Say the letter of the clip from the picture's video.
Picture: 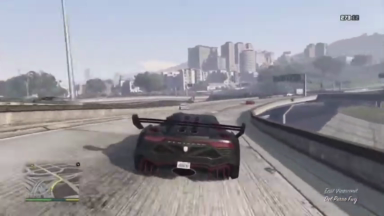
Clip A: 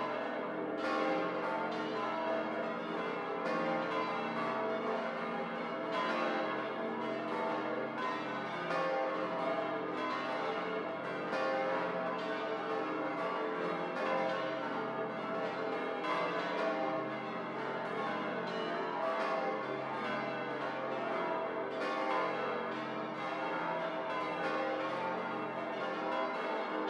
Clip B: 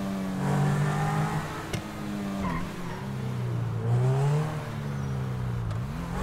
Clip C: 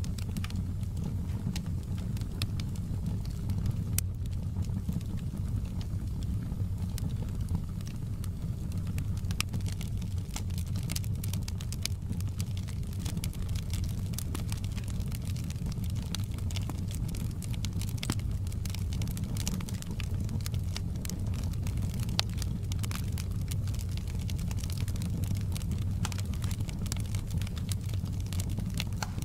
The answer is B